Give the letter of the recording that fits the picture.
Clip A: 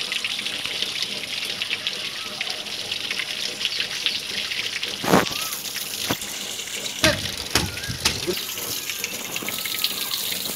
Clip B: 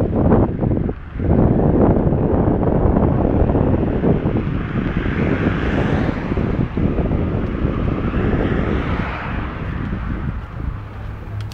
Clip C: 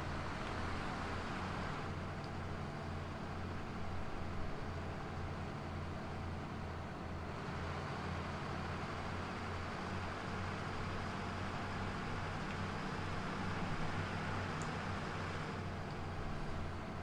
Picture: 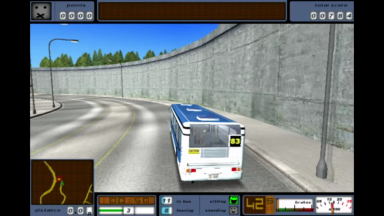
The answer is C